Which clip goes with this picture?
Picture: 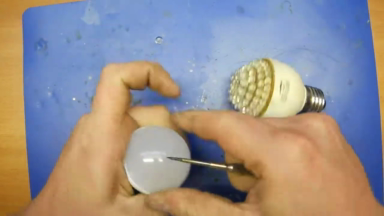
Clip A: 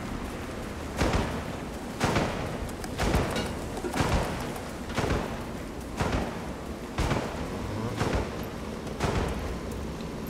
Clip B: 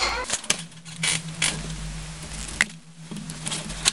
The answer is B